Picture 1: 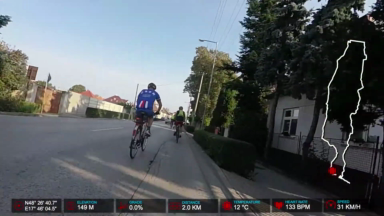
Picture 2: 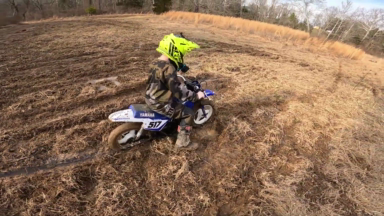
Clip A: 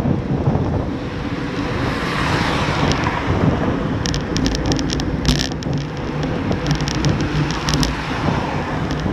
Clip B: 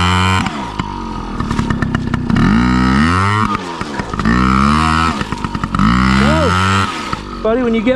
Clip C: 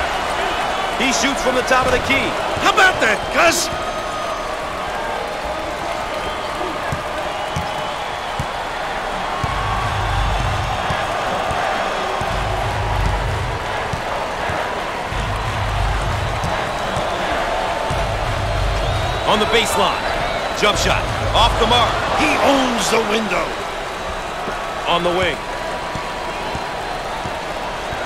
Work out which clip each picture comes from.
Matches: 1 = A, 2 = B